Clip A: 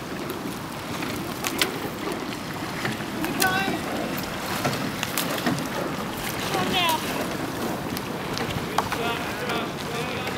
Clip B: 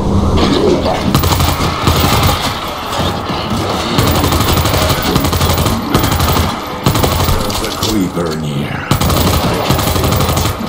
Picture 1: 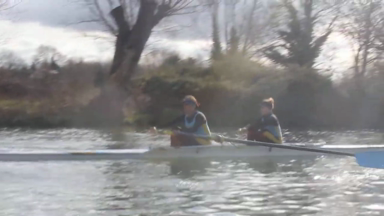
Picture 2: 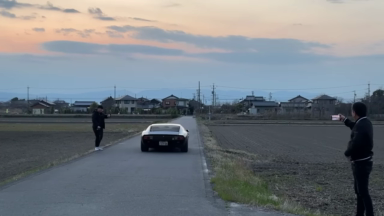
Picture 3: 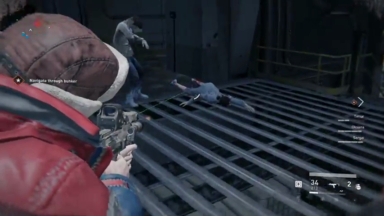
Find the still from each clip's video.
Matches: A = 1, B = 3